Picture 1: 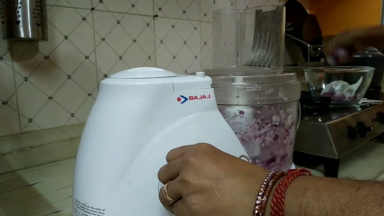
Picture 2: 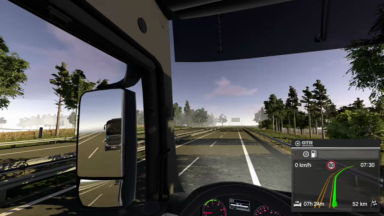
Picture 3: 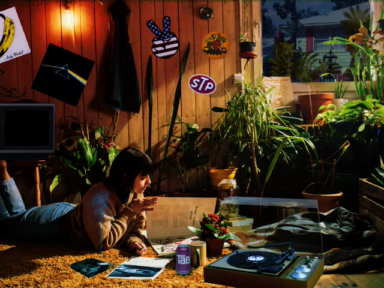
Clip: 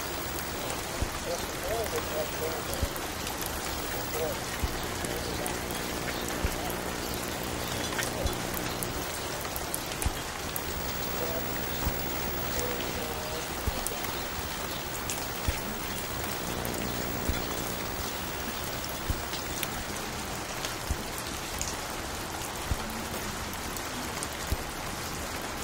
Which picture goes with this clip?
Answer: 3